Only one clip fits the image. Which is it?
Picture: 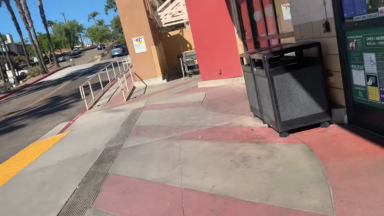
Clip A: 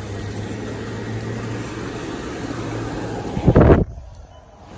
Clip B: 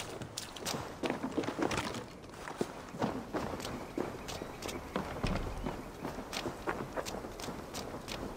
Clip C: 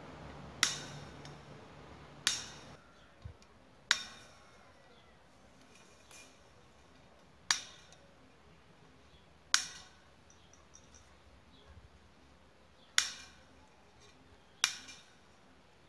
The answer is A